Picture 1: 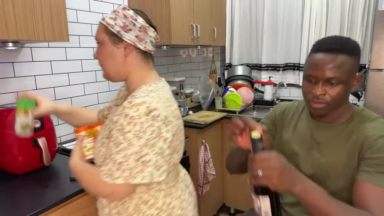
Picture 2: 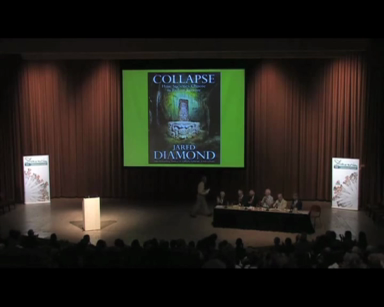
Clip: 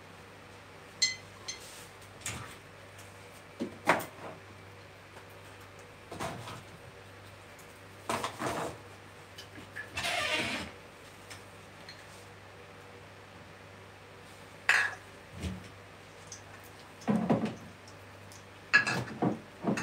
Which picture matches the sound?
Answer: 1